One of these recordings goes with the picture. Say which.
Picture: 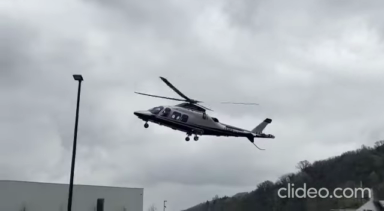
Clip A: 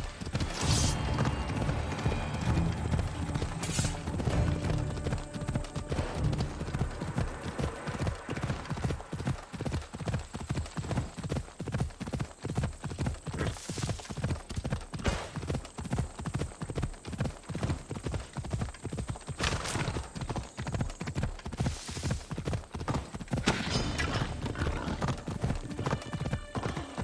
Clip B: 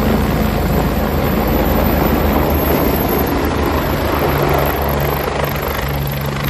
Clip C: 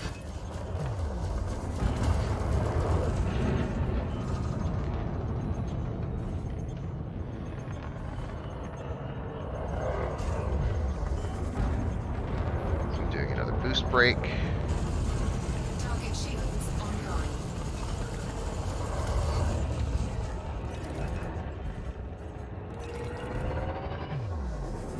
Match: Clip B